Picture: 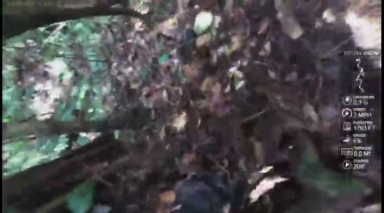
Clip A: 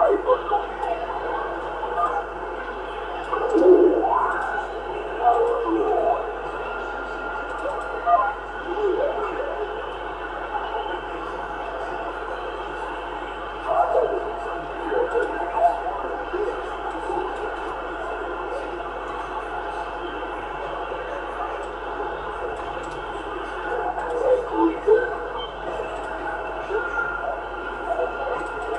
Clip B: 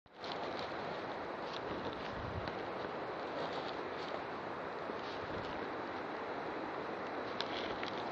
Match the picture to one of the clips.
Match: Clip B